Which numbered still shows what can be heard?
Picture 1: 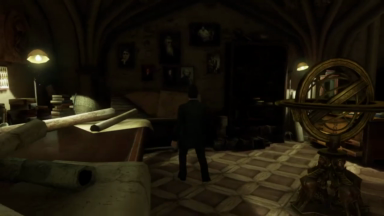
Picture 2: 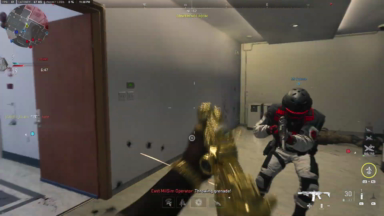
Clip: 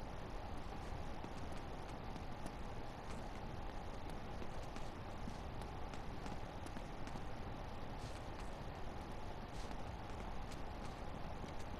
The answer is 1